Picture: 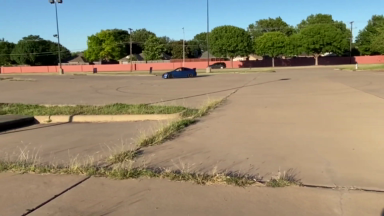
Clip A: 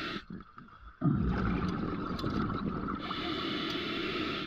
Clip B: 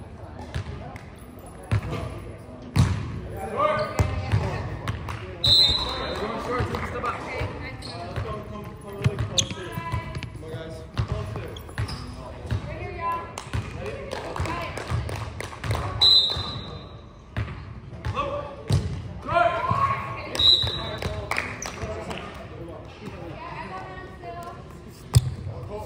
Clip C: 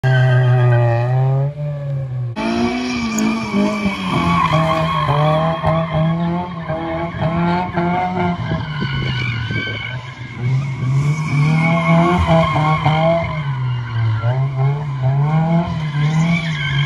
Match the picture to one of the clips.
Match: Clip C